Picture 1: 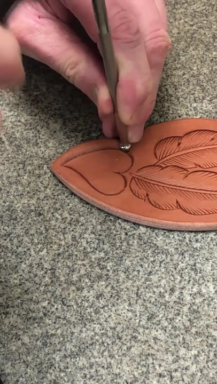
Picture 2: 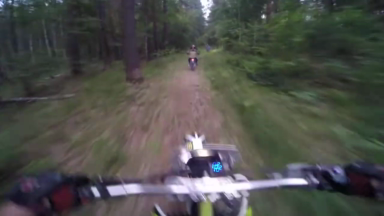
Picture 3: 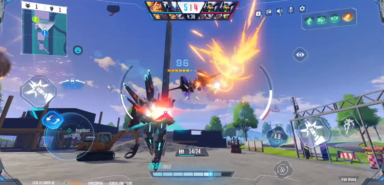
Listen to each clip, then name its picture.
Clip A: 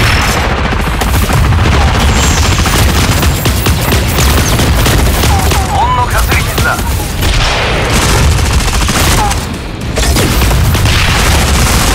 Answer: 3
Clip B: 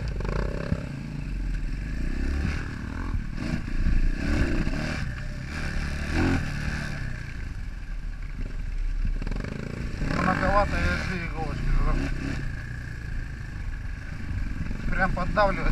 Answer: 2